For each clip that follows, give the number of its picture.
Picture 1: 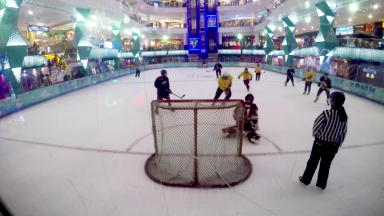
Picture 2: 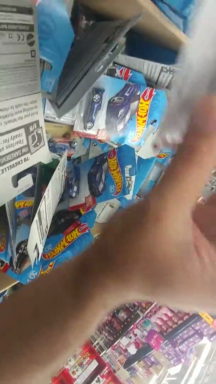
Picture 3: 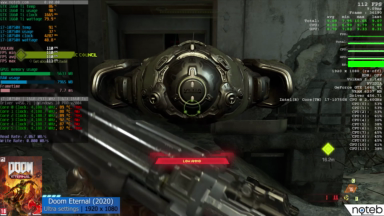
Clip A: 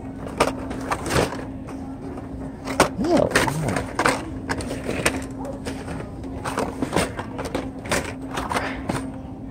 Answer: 2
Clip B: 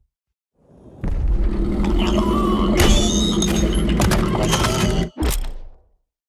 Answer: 3